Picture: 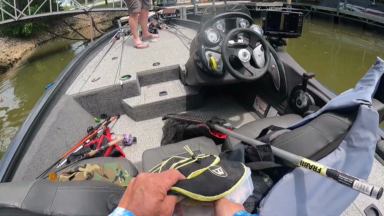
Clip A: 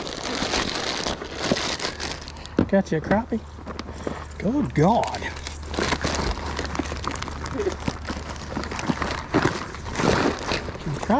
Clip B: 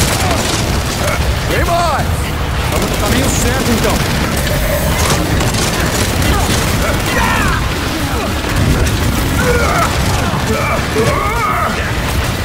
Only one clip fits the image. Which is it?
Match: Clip A